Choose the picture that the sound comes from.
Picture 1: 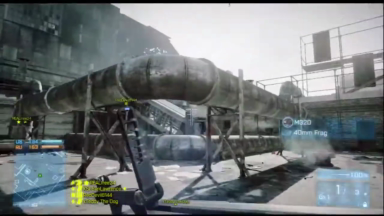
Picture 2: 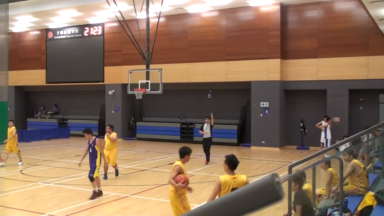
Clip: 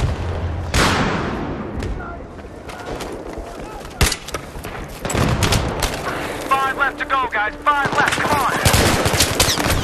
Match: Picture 1